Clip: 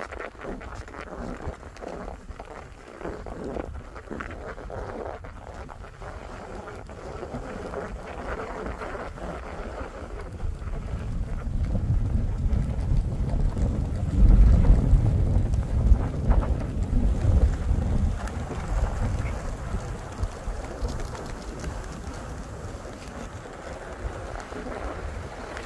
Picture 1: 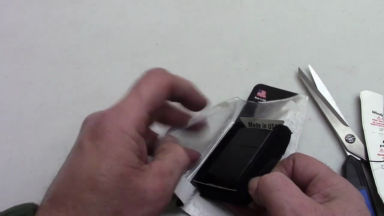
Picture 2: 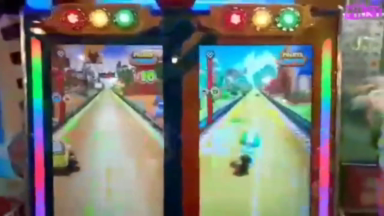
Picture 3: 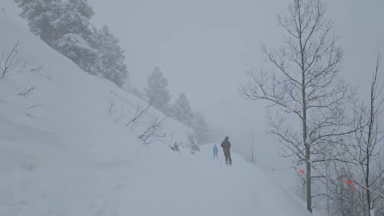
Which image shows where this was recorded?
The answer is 3